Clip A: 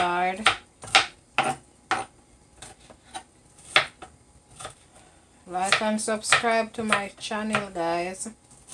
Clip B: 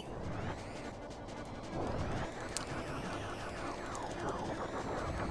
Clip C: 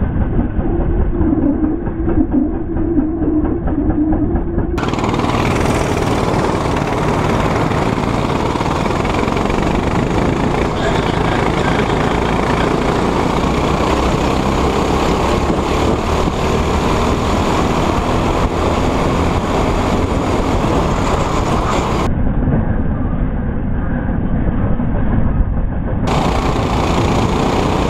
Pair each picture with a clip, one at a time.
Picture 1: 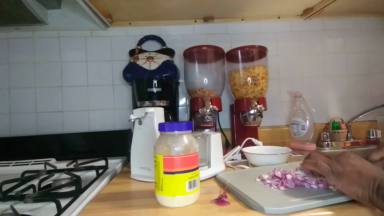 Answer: A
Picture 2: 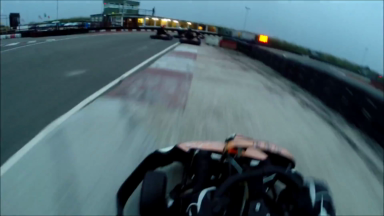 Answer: C